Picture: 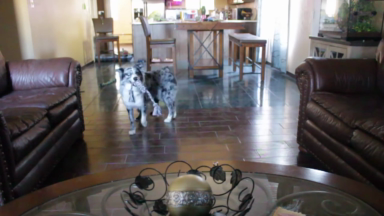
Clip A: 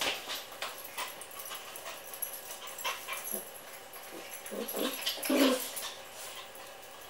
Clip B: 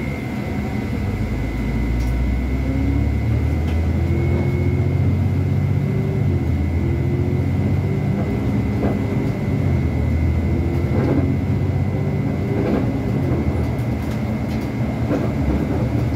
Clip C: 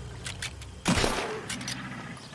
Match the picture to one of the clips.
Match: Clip A